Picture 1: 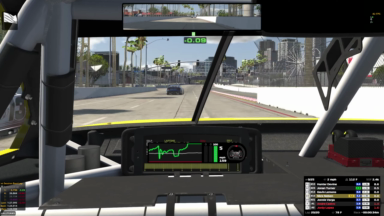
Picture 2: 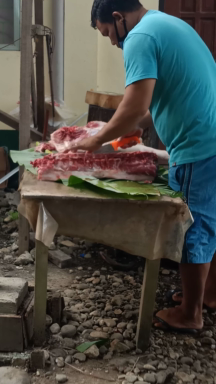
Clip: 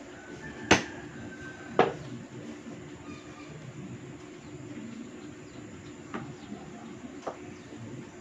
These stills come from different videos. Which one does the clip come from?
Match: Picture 2